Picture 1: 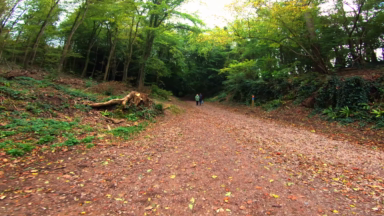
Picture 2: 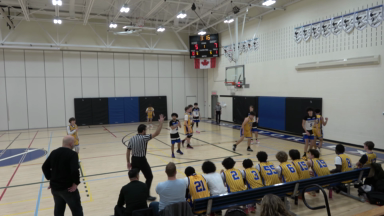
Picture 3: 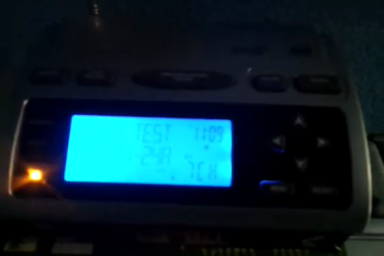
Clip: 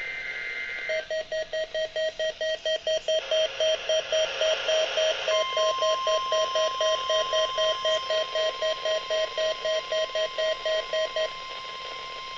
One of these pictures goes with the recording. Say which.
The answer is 3